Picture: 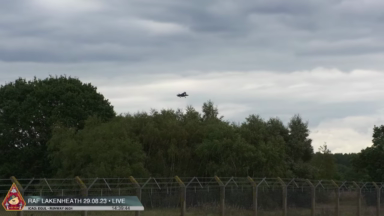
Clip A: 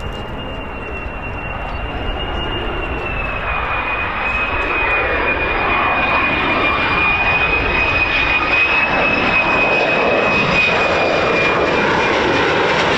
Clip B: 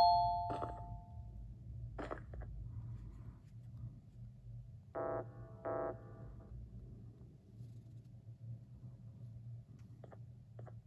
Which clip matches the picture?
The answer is A